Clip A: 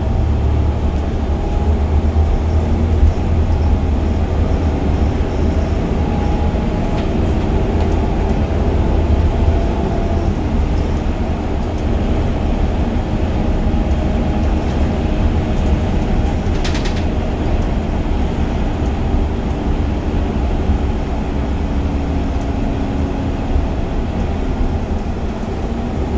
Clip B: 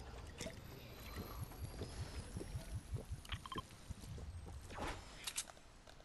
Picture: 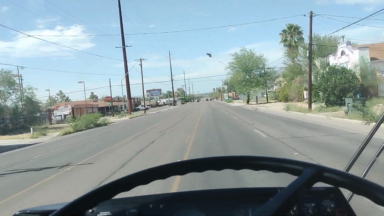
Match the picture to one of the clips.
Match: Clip A